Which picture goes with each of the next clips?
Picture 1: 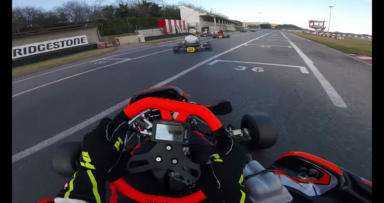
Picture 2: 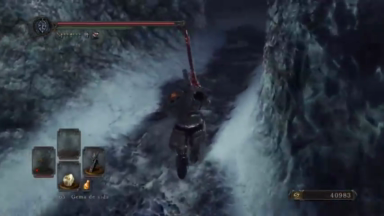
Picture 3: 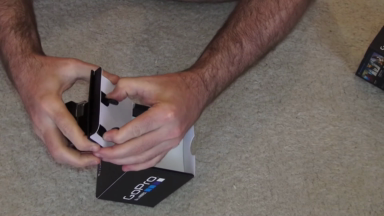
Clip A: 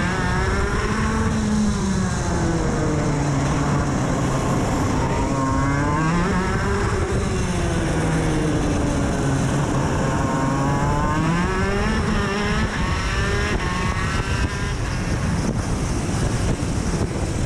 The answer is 1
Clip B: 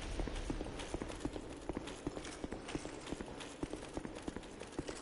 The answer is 2